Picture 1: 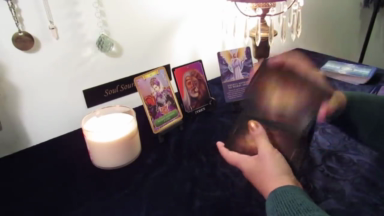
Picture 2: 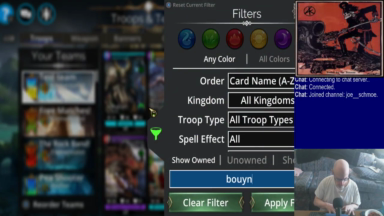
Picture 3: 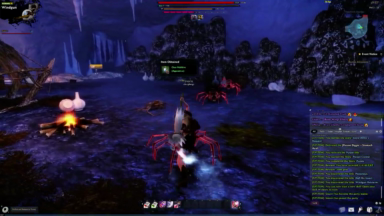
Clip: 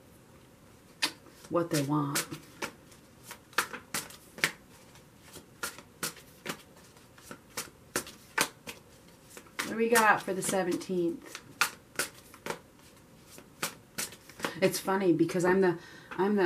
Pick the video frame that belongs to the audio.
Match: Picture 1